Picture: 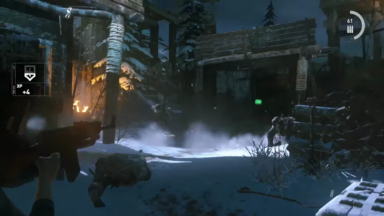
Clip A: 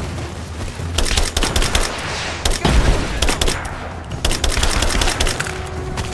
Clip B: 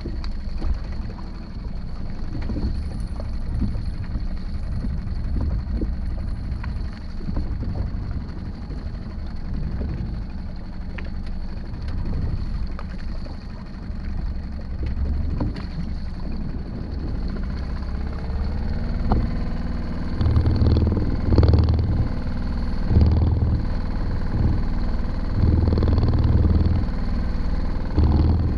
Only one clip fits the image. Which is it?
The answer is A